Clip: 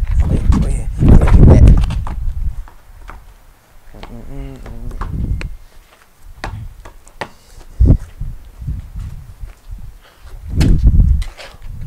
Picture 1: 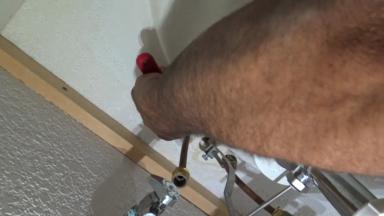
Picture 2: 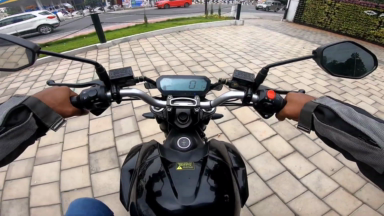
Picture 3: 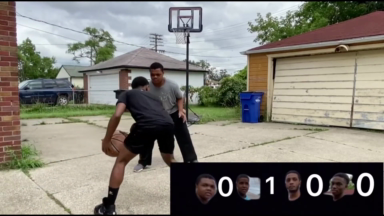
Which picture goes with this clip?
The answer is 3